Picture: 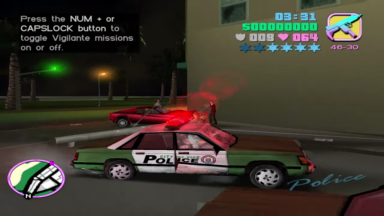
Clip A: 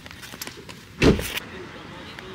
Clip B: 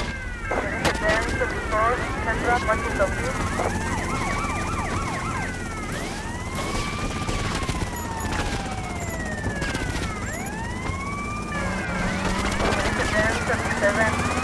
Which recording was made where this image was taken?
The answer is B